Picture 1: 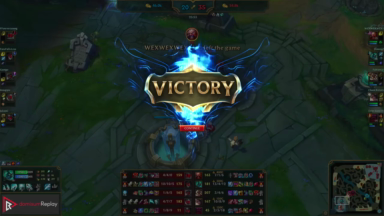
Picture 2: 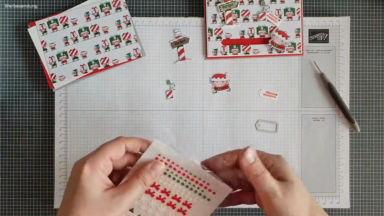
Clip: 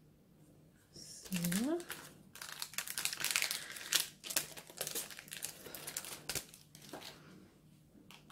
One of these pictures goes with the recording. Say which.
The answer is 2